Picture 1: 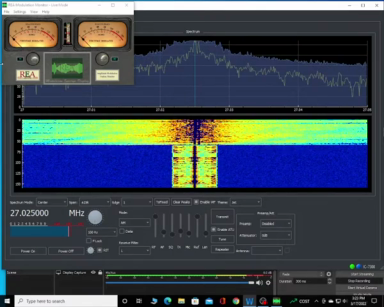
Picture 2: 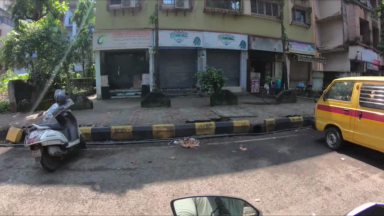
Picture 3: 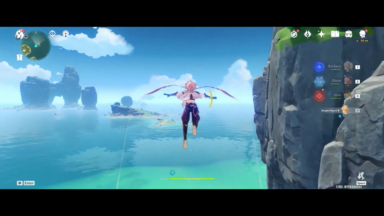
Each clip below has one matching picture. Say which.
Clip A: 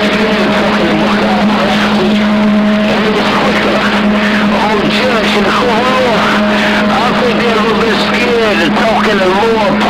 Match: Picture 1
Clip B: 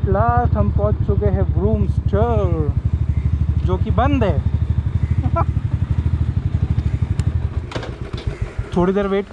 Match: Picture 2